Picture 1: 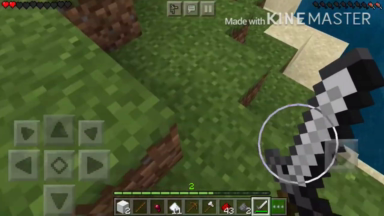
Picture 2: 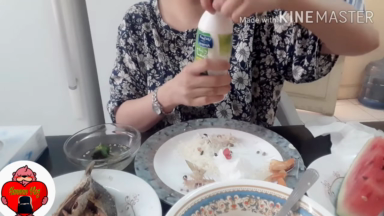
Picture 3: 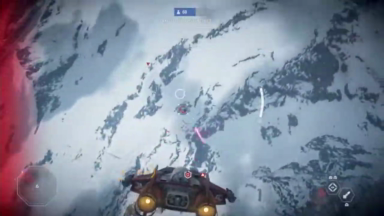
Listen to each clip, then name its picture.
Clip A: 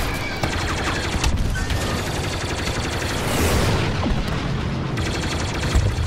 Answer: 3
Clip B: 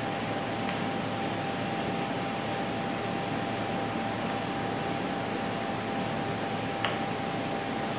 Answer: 2